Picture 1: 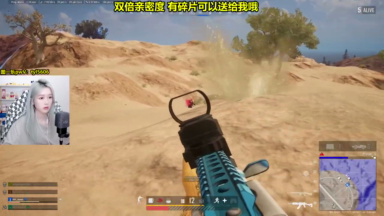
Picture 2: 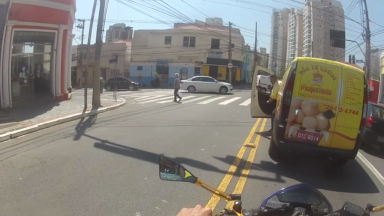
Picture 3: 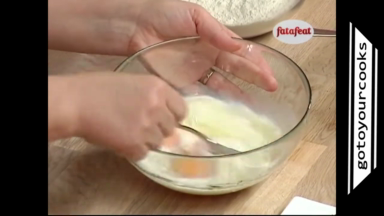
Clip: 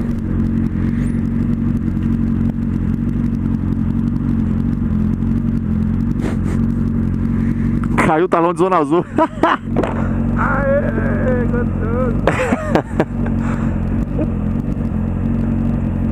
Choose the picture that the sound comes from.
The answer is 2